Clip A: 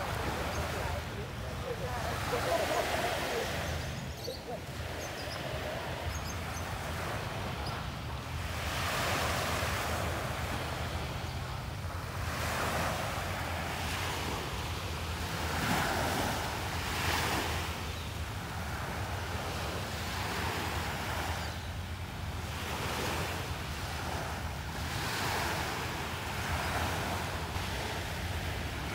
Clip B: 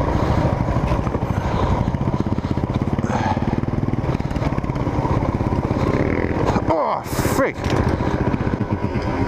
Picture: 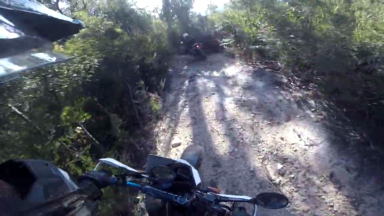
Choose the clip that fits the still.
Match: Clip B